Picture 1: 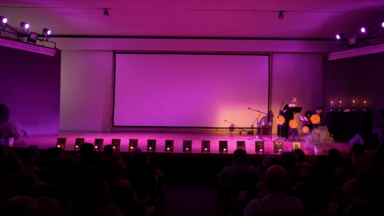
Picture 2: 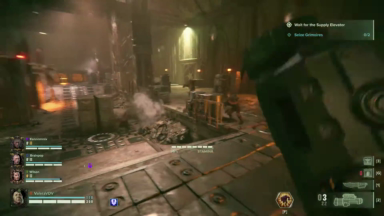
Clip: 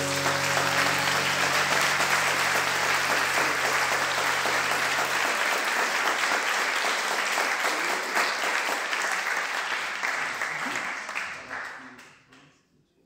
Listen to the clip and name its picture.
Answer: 1